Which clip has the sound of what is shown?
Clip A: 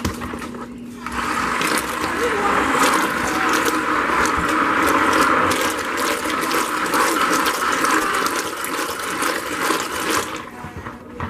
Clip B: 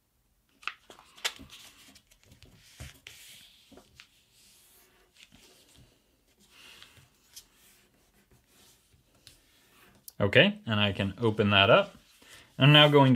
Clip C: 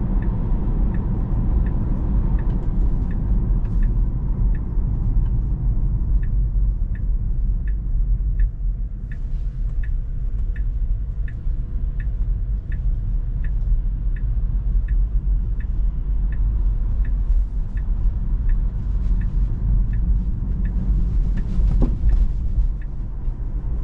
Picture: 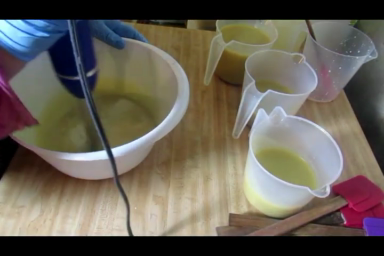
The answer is A